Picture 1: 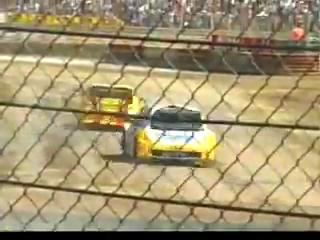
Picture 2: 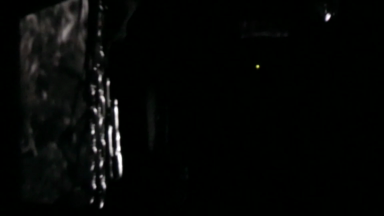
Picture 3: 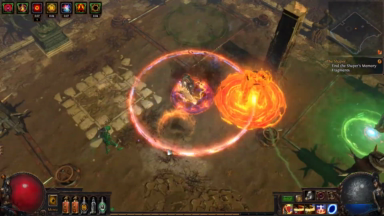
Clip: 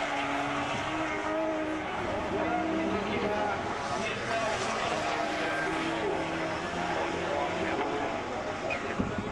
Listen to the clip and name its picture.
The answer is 1